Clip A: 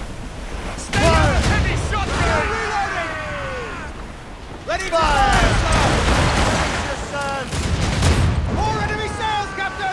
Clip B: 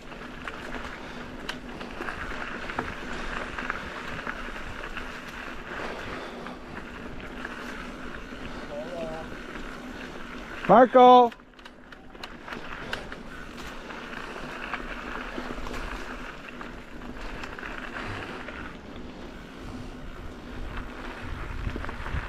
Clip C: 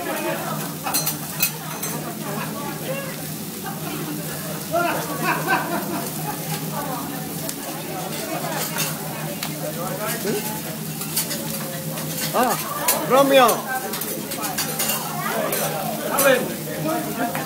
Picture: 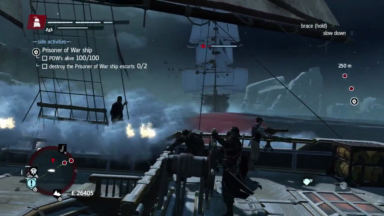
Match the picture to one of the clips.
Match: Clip A